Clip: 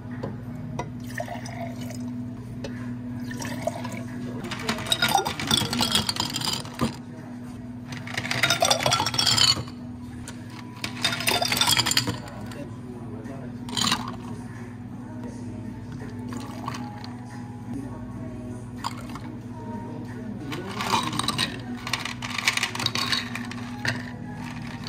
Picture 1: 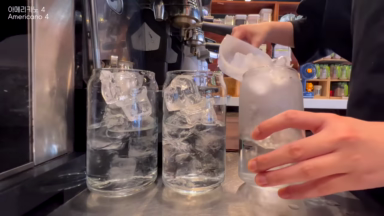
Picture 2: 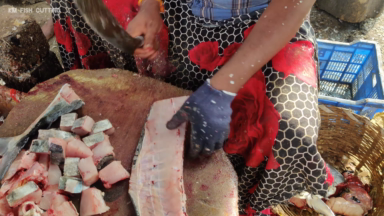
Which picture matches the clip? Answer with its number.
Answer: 1